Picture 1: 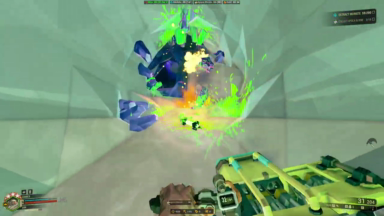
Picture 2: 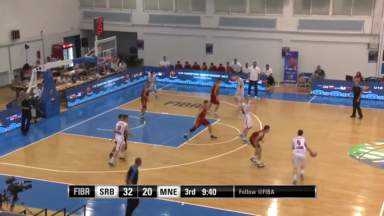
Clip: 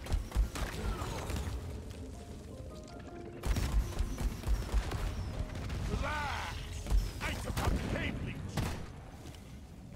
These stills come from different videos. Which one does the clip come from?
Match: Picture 1